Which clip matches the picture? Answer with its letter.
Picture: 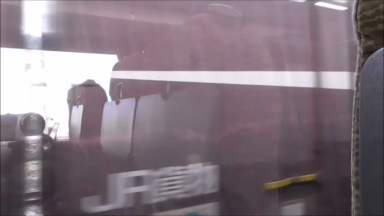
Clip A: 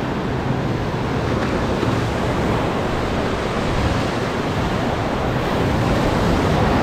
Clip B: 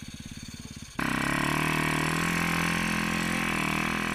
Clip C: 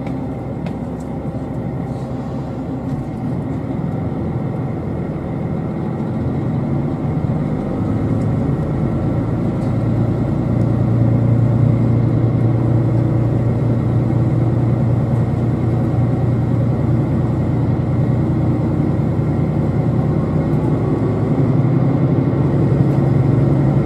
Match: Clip C